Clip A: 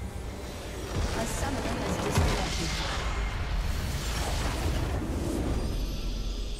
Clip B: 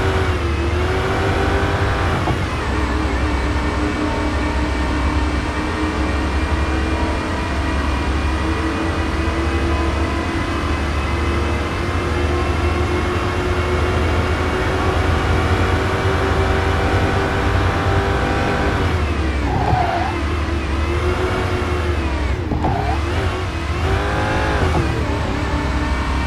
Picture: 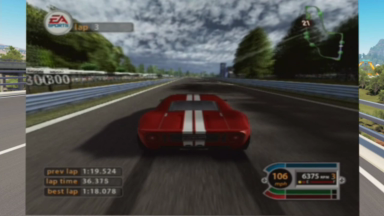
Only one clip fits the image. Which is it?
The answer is B